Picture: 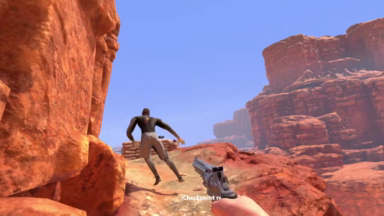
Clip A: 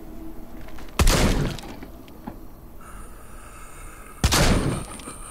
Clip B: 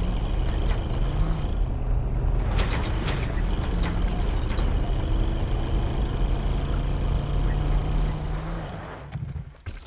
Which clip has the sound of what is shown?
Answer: A